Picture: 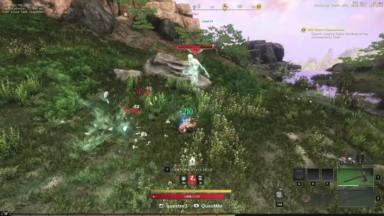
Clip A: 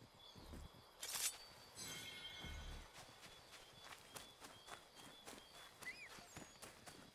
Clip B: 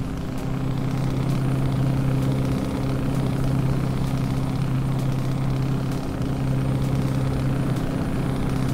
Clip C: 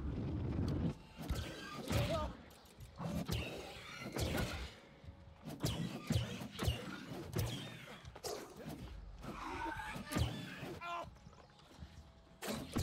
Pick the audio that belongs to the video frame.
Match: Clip C